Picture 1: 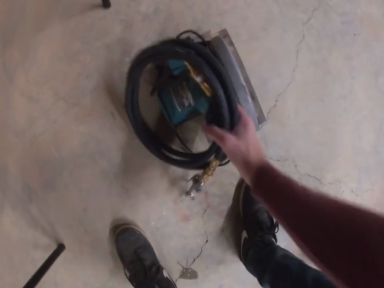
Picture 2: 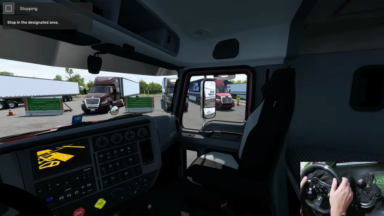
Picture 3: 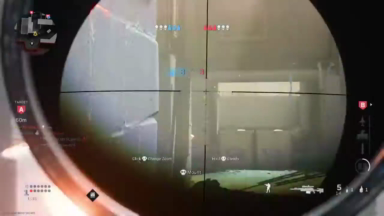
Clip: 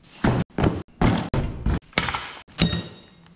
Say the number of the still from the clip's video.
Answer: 1